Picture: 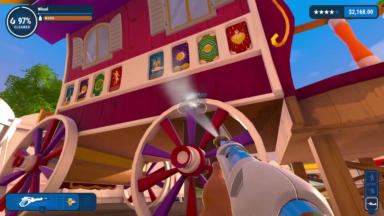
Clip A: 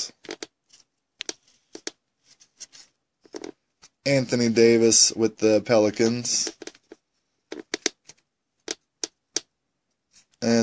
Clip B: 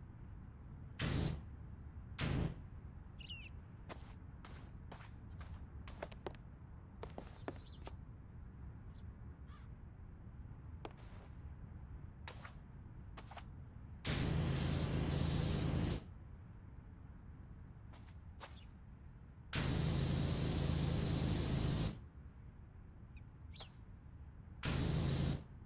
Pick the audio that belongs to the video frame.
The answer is B